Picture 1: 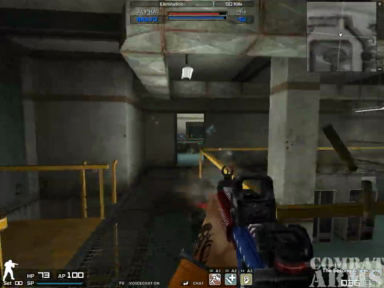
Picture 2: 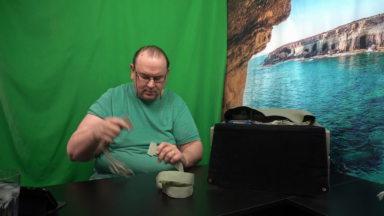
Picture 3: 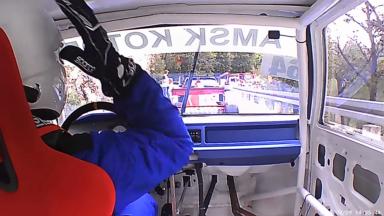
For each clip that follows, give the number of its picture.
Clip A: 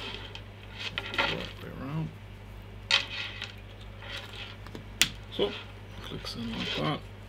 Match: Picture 2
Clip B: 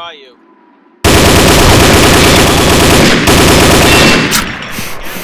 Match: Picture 1